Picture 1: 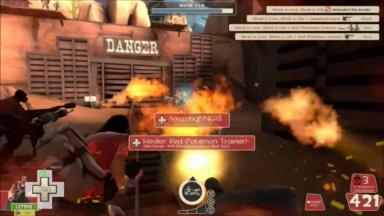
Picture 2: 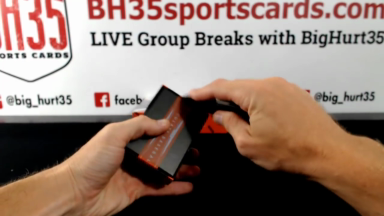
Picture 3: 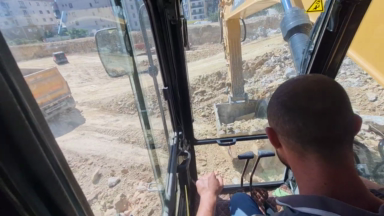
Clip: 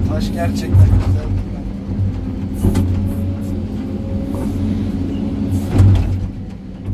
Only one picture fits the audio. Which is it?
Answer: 3